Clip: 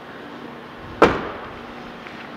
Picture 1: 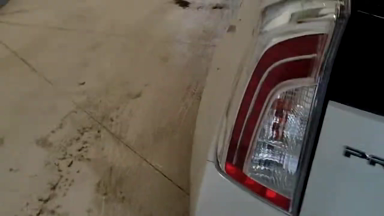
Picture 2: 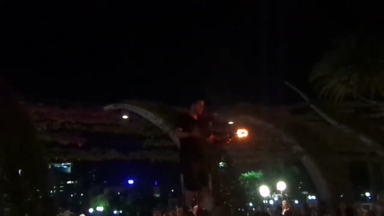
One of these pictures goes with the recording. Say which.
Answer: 1